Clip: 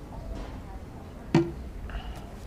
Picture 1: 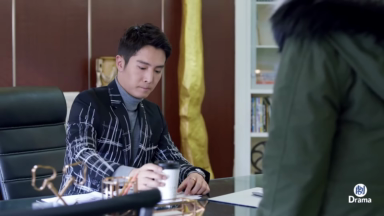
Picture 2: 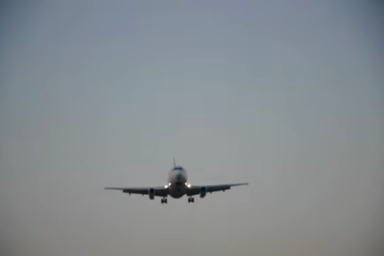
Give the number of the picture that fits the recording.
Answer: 1